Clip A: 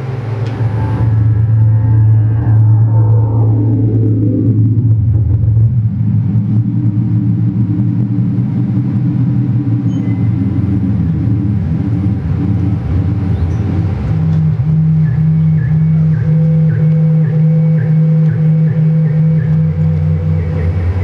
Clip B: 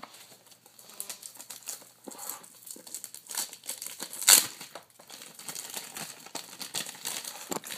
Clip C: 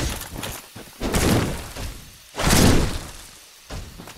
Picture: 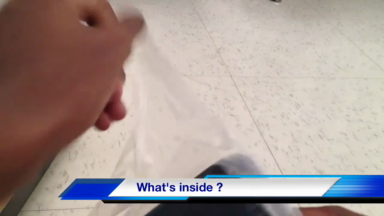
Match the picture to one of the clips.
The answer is B